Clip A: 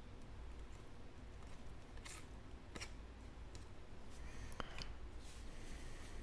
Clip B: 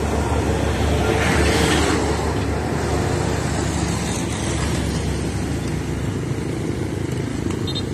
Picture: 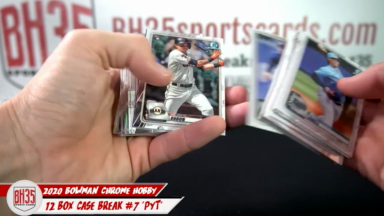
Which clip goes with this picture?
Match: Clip A